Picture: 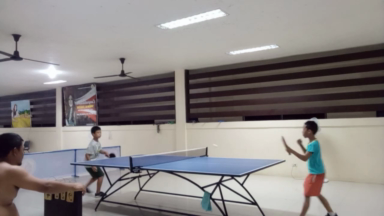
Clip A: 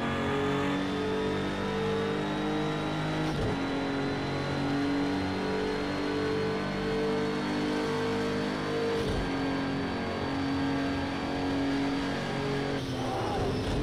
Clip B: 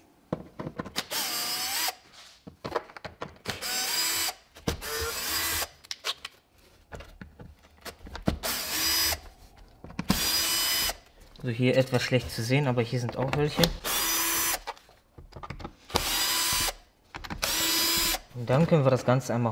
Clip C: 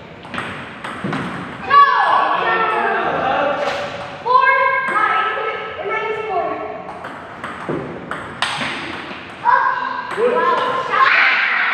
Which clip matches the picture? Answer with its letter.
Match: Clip C